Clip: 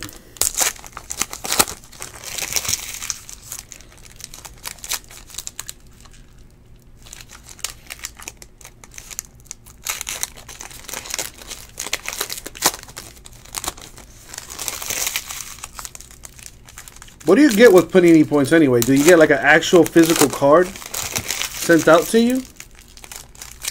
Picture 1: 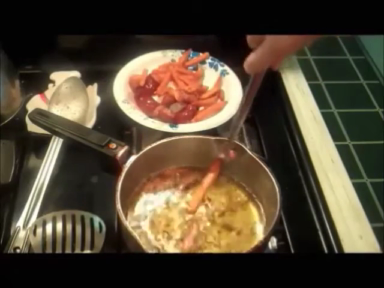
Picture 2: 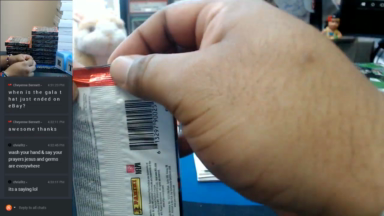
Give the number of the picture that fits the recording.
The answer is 2